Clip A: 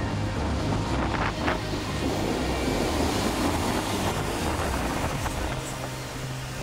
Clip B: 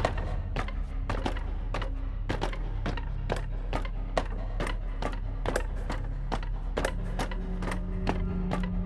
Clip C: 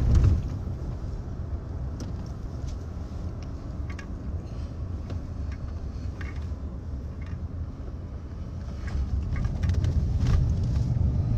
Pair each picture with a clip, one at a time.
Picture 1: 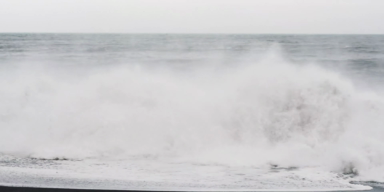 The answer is A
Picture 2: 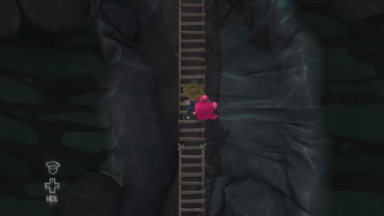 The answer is B